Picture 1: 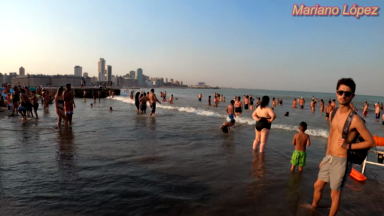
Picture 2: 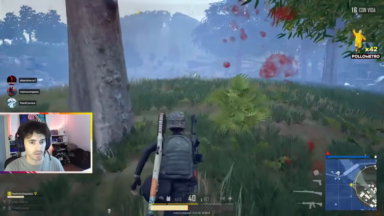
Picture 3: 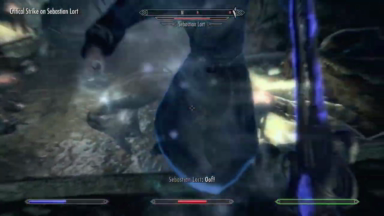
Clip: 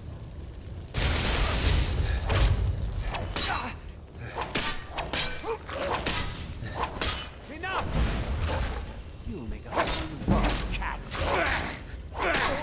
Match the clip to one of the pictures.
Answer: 3